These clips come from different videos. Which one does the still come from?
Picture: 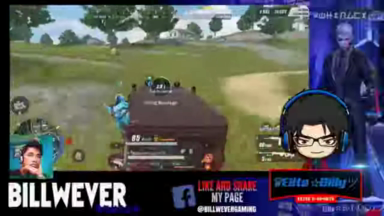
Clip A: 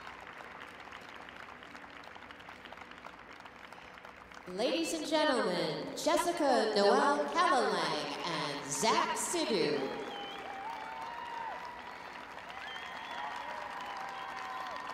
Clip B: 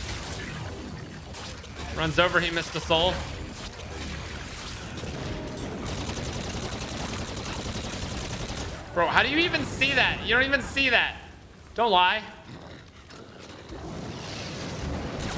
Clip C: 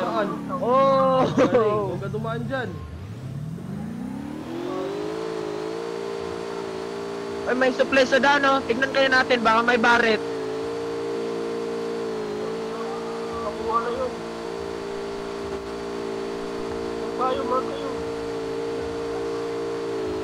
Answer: C